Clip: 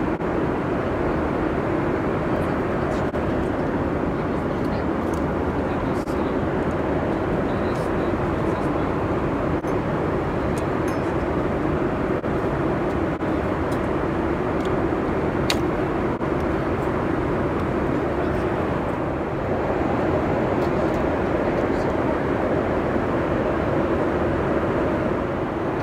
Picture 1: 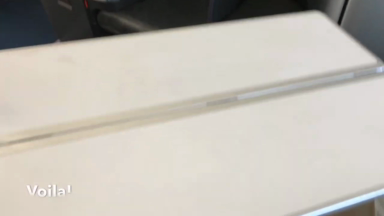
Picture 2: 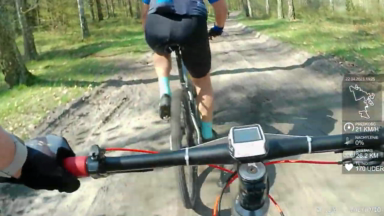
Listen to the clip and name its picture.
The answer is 1